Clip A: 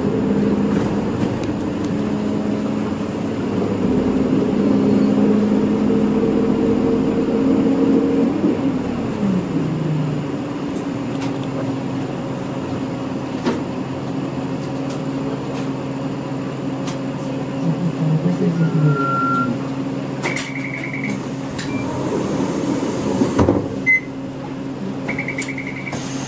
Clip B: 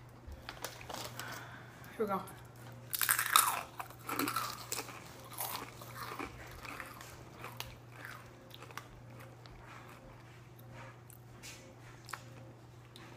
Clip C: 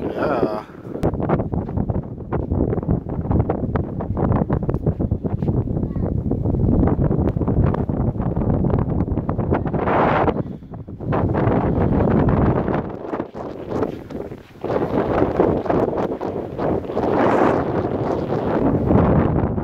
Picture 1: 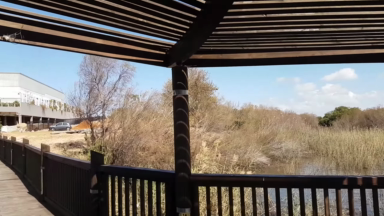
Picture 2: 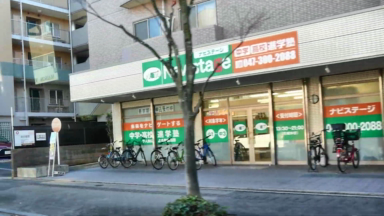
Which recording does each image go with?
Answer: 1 C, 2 A